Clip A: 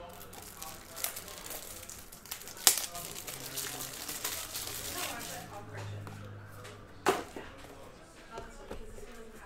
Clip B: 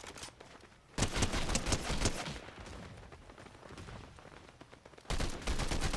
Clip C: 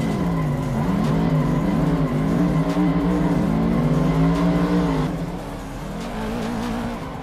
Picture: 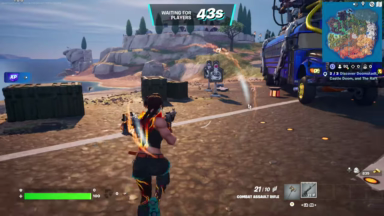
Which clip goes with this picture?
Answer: B